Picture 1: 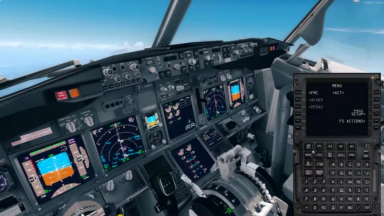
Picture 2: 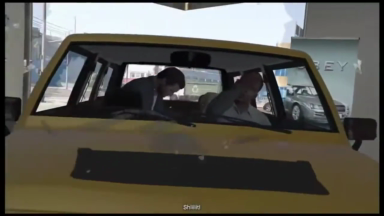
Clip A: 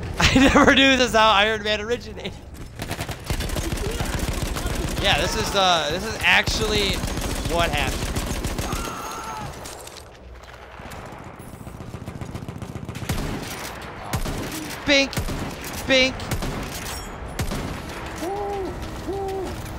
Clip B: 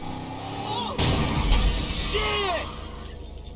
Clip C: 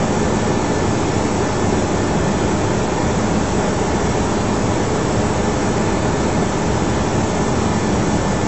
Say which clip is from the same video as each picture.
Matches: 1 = C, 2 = B